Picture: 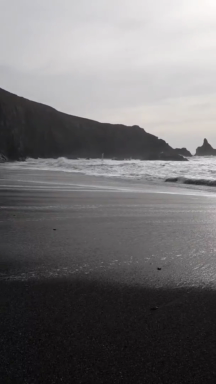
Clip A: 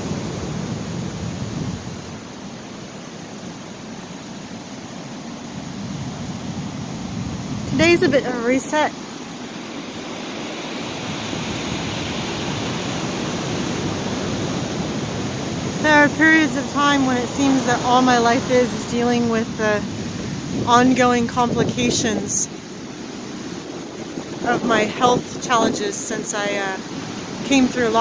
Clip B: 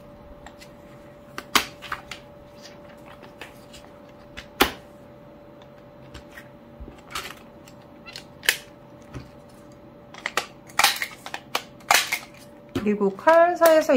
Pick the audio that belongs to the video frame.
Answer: A